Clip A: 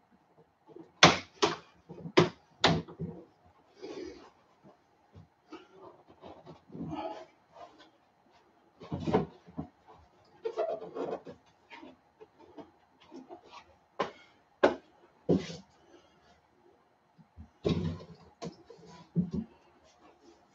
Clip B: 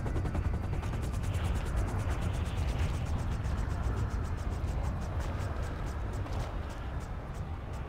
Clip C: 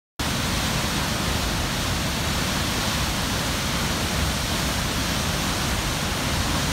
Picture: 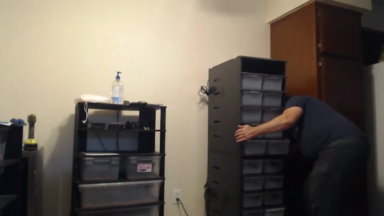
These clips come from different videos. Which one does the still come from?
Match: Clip A